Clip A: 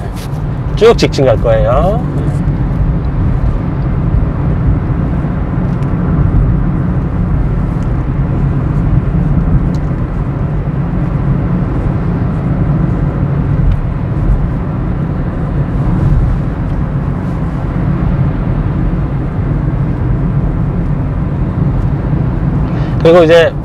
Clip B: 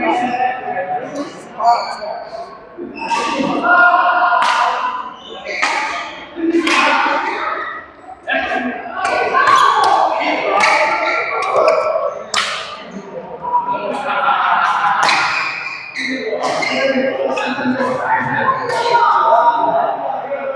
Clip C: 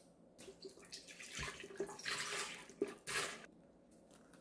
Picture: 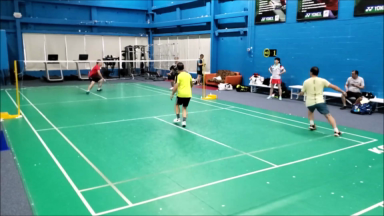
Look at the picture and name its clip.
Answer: B